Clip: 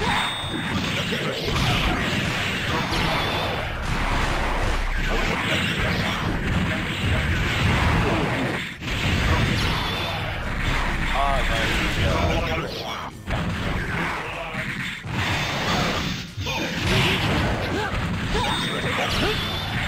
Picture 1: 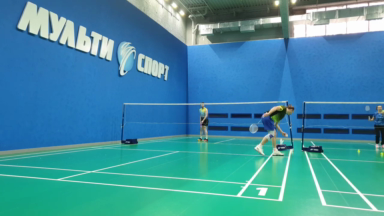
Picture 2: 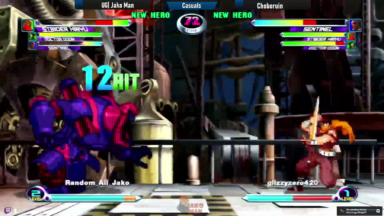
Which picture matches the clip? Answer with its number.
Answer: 2